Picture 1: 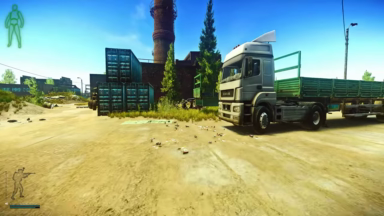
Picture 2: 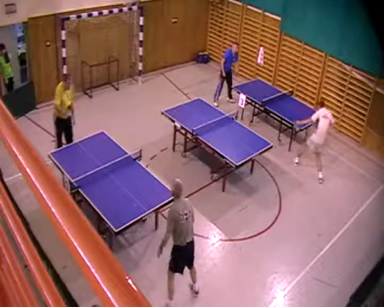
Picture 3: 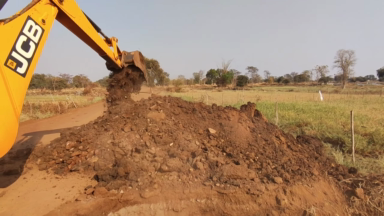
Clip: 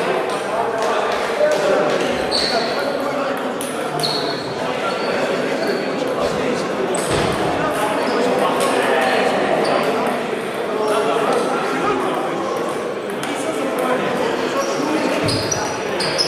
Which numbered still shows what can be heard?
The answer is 2